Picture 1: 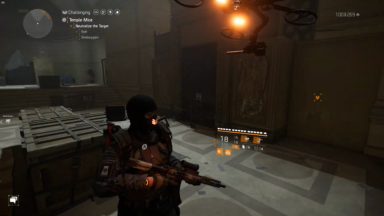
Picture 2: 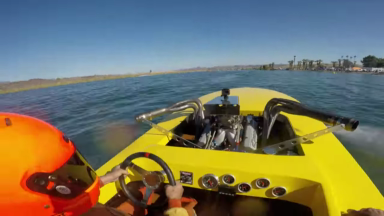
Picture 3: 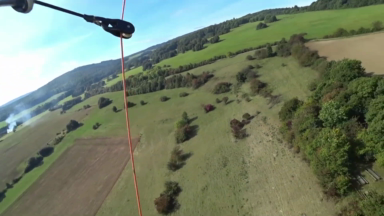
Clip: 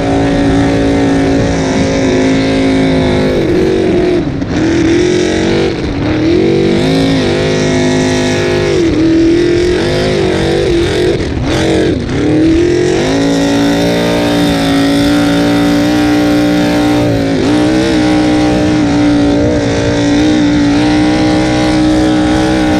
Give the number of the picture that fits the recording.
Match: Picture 2